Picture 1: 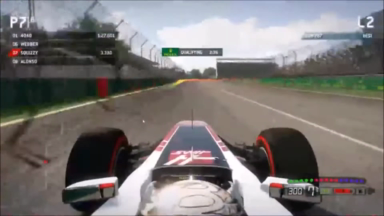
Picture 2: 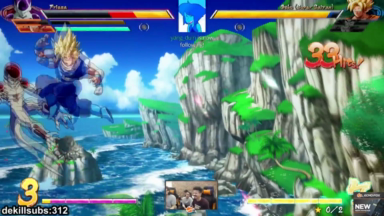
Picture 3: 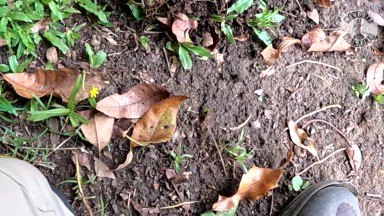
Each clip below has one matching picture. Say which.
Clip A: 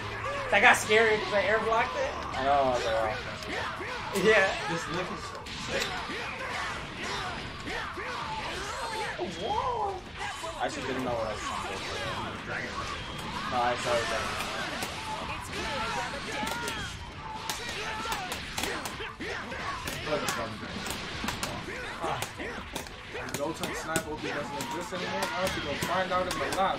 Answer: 2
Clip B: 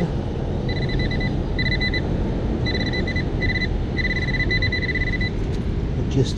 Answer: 3